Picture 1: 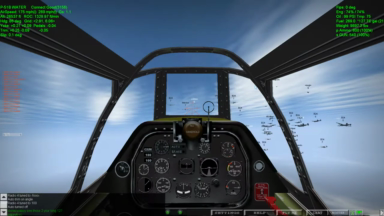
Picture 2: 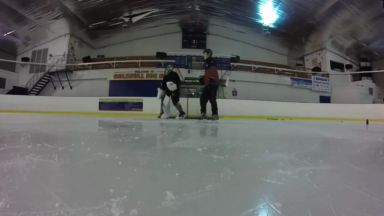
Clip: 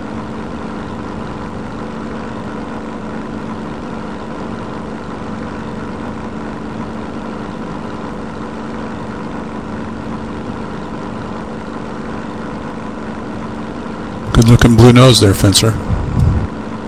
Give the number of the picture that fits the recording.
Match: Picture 1